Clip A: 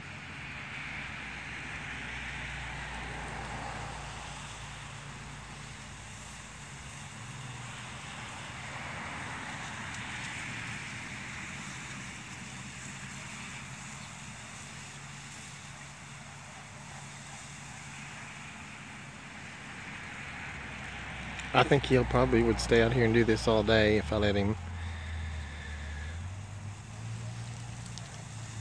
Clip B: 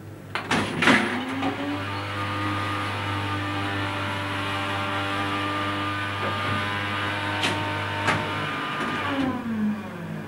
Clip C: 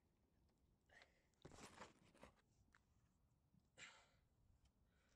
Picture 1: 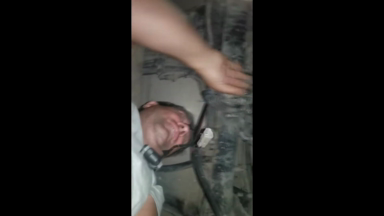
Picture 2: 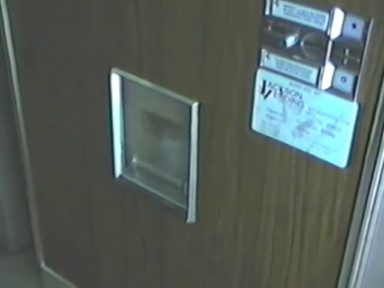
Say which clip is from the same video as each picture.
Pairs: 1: C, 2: B